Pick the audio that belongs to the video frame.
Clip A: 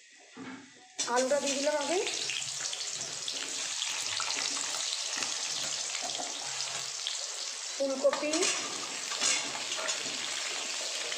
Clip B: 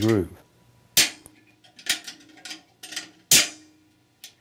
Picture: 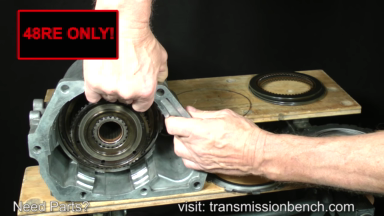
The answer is B